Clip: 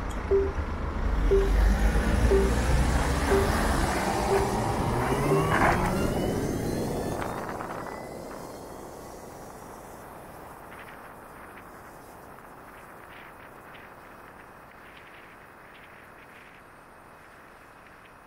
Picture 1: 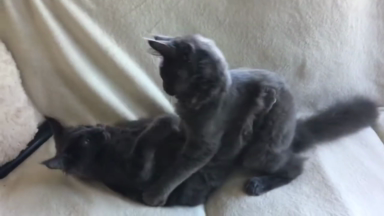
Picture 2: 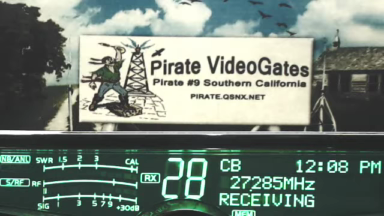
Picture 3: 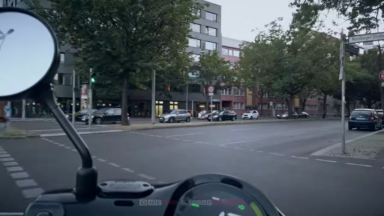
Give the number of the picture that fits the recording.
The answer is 3